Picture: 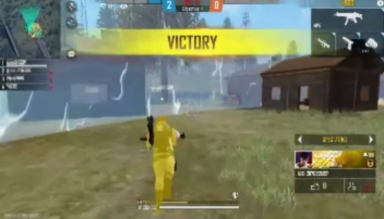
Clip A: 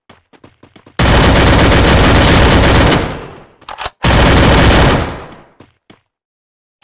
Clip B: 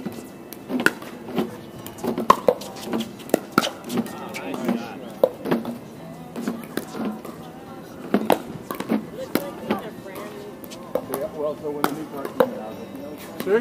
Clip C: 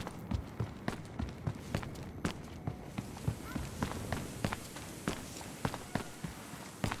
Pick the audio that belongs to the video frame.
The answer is A